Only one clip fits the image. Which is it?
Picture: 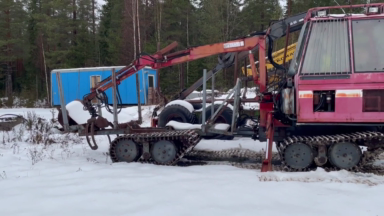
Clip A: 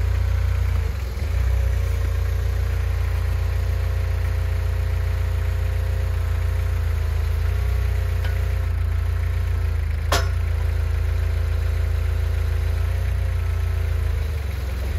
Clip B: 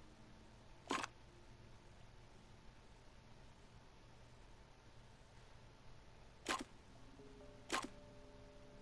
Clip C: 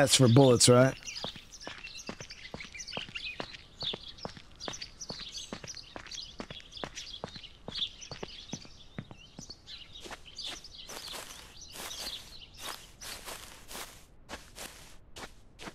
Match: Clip A